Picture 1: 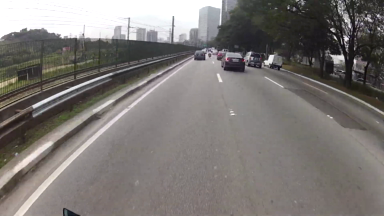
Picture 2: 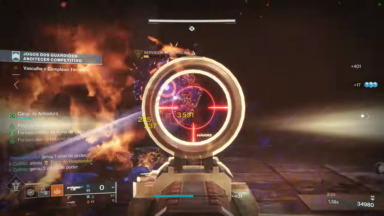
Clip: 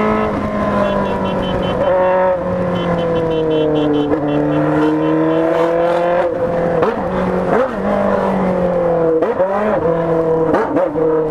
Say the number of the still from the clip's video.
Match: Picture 1